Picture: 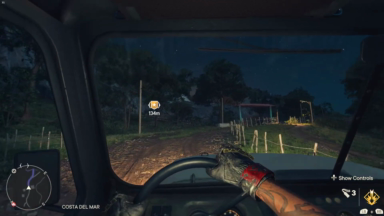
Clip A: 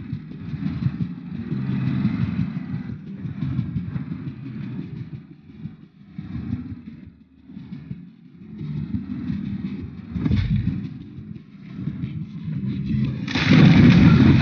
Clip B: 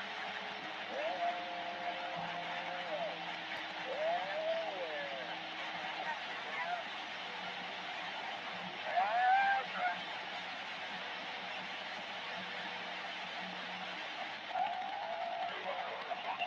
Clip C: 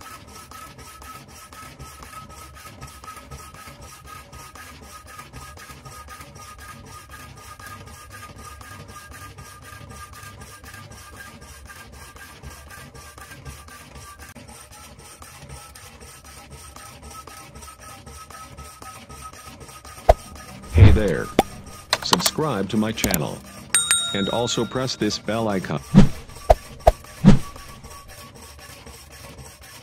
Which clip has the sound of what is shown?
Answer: A